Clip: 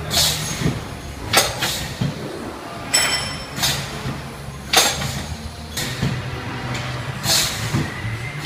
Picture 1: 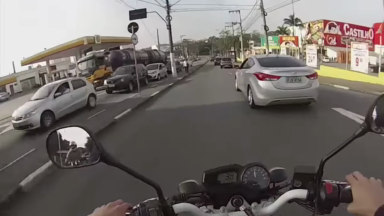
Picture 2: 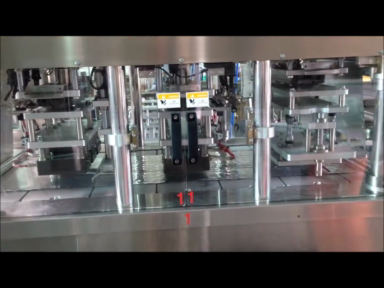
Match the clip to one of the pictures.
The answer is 2